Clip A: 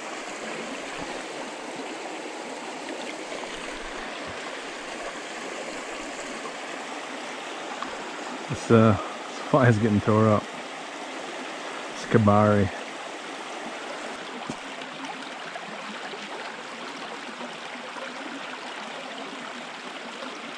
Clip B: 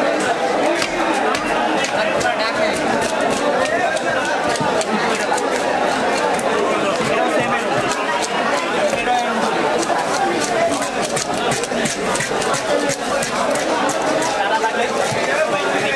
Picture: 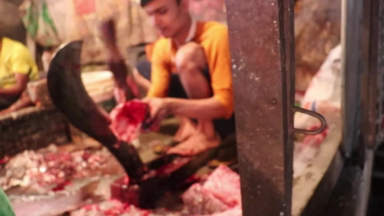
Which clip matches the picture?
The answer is B